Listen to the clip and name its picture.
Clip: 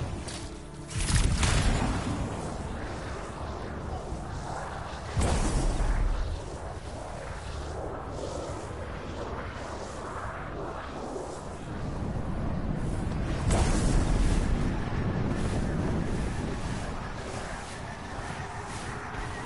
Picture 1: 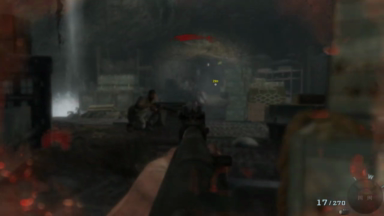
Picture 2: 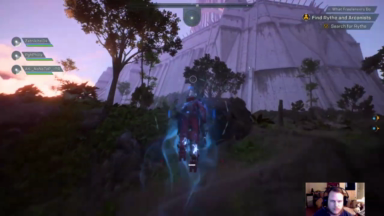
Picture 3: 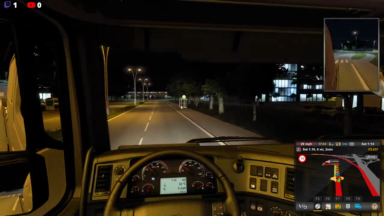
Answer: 2